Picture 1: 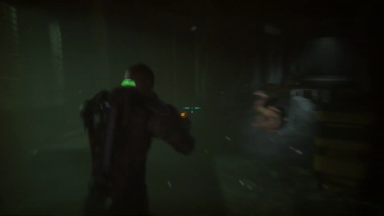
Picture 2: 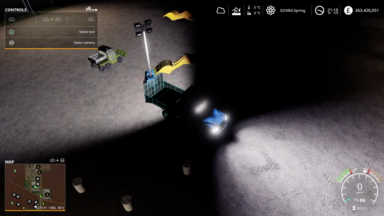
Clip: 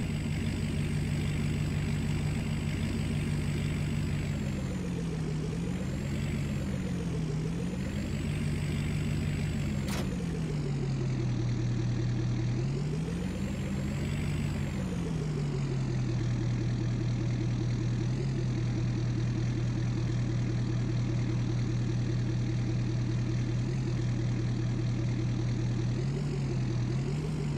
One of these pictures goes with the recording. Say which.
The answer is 2